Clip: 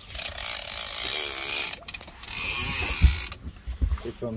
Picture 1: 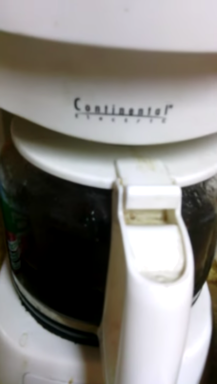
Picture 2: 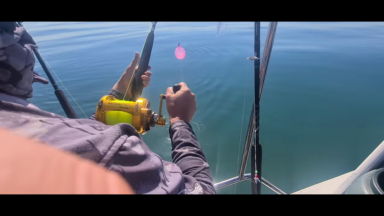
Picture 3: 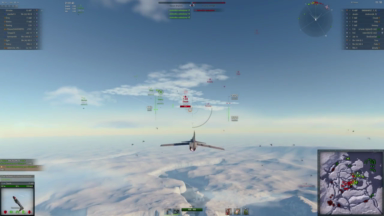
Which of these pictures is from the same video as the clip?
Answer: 2